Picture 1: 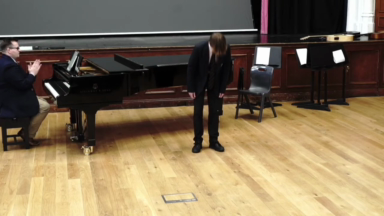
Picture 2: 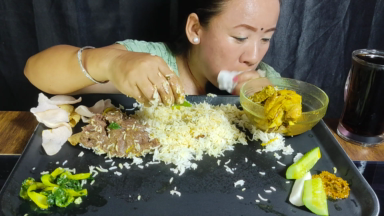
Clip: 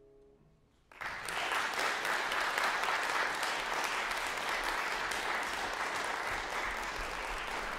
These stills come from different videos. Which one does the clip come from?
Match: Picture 1